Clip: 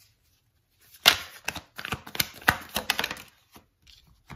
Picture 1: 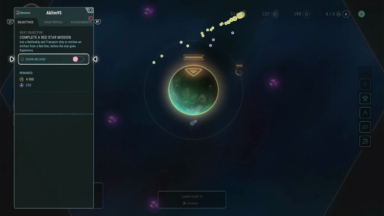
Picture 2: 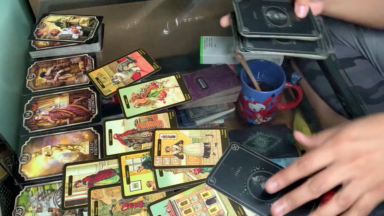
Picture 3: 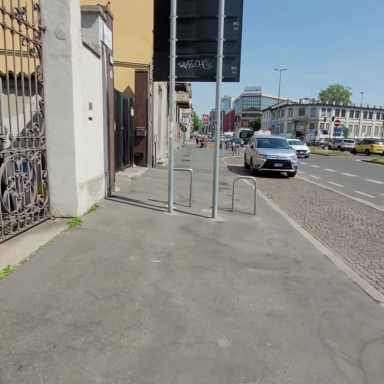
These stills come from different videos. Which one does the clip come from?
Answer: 2